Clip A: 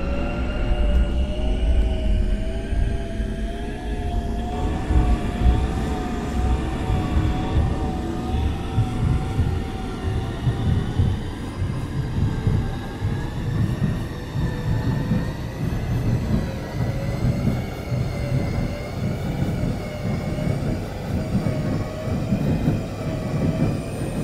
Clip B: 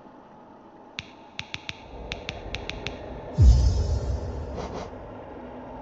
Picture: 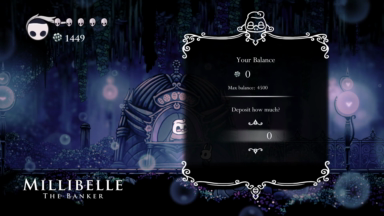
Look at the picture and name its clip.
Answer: B